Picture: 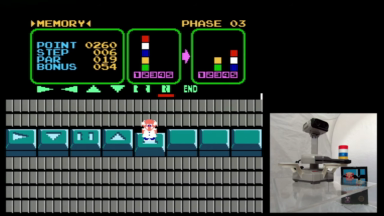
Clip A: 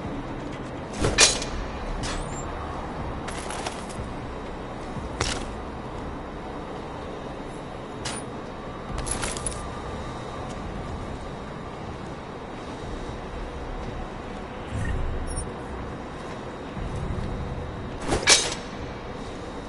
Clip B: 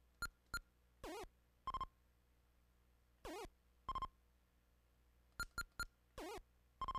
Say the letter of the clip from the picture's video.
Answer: B